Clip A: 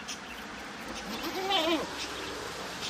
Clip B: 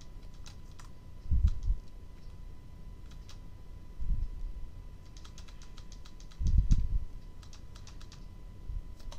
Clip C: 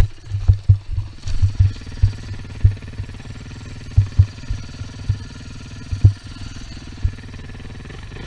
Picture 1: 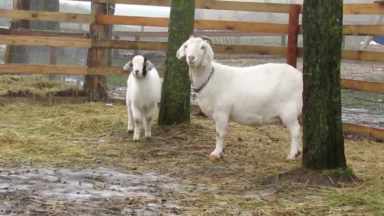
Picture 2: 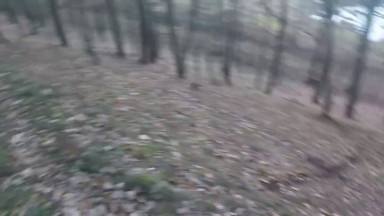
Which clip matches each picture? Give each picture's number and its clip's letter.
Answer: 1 A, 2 C